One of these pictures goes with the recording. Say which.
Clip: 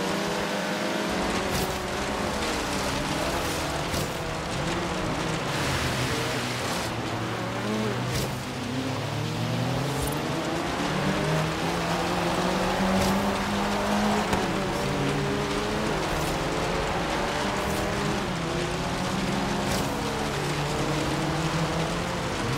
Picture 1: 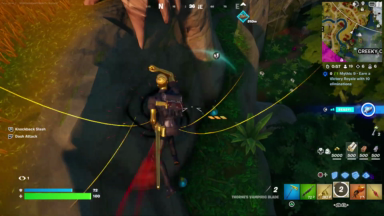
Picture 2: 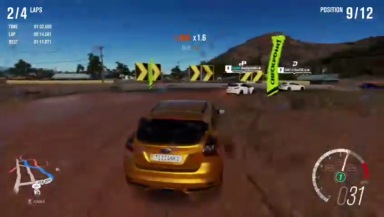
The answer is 2